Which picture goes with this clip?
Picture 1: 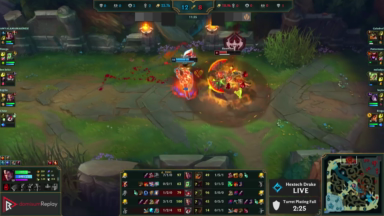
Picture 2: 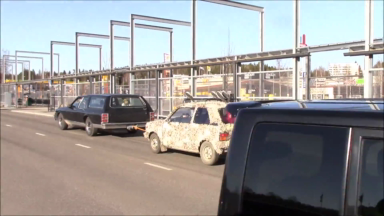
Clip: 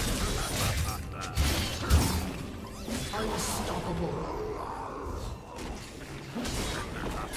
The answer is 1